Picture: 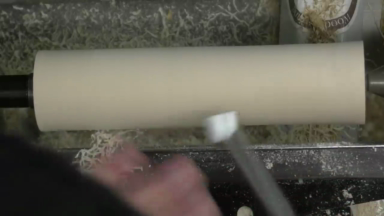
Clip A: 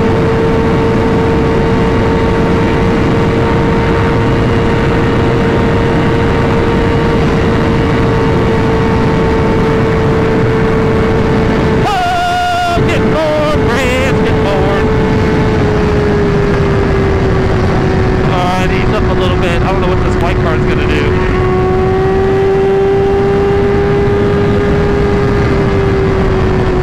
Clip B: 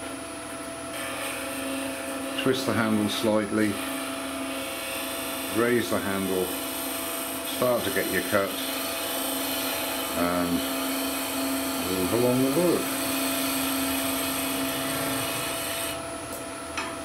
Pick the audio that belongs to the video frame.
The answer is B